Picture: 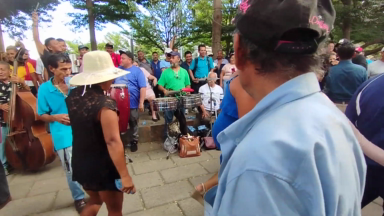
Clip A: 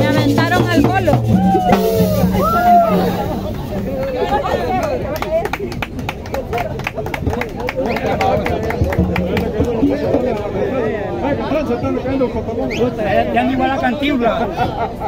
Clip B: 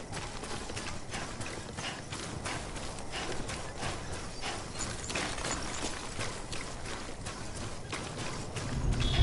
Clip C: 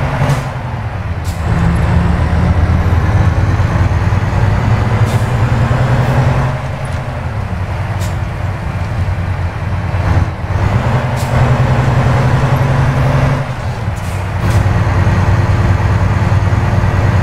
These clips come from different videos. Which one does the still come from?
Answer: A